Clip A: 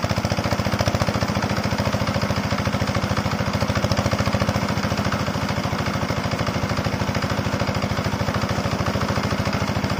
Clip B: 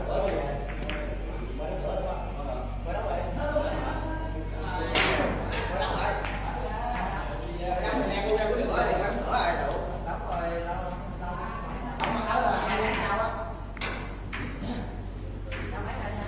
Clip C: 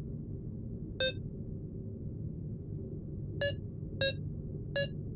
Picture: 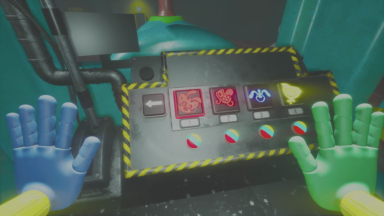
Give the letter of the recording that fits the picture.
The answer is C